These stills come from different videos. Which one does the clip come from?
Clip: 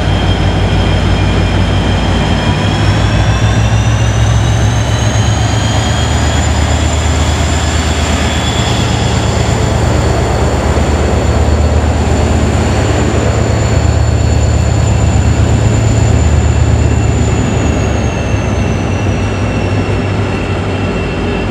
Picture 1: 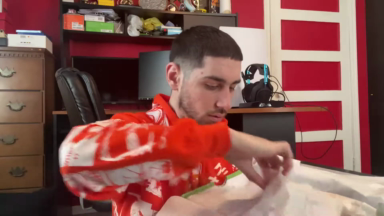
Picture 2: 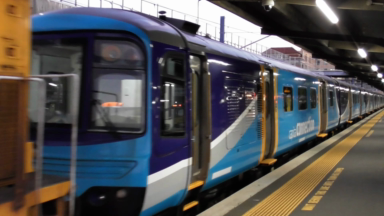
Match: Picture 2